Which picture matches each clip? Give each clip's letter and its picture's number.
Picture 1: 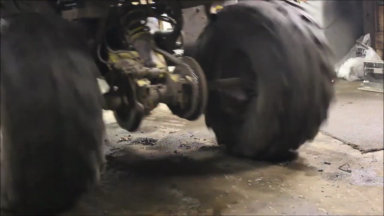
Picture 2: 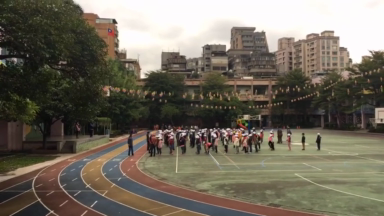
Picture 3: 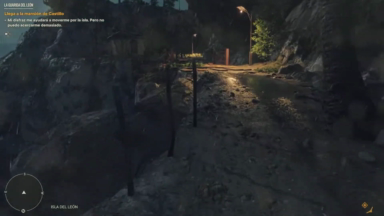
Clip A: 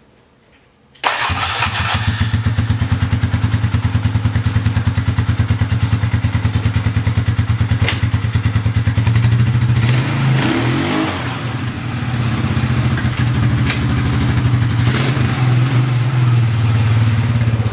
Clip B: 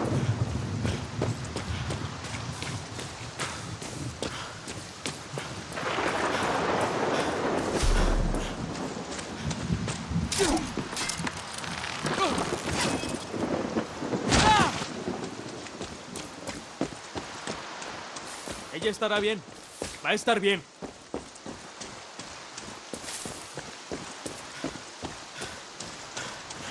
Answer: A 1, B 3